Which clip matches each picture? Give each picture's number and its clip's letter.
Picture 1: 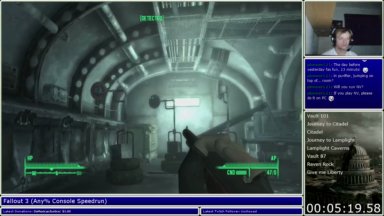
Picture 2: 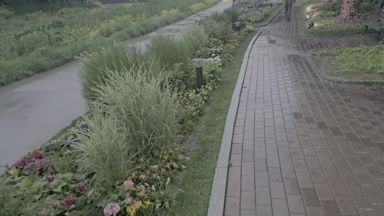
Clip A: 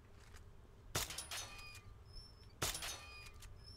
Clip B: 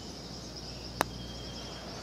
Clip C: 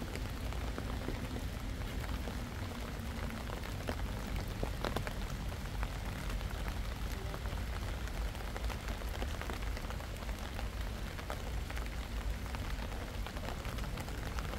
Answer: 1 A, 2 C